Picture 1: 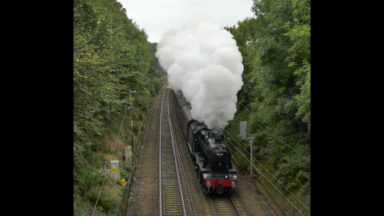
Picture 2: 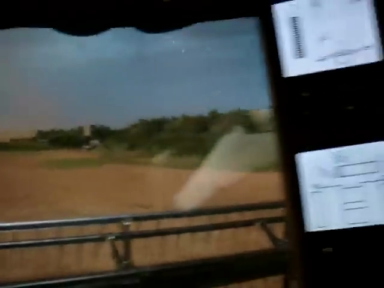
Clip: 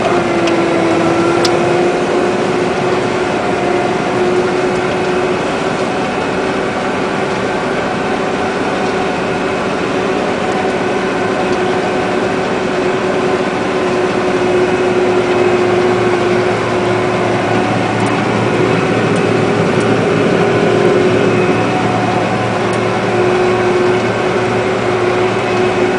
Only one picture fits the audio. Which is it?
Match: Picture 2